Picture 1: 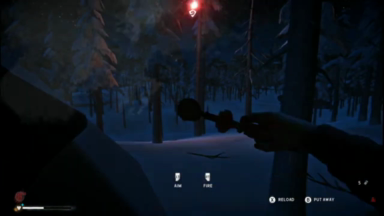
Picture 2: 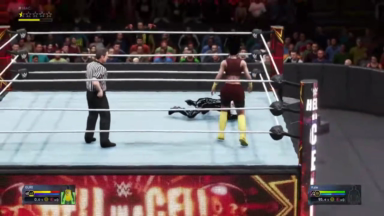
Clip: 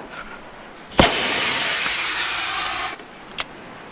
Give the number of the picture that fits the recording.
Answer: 1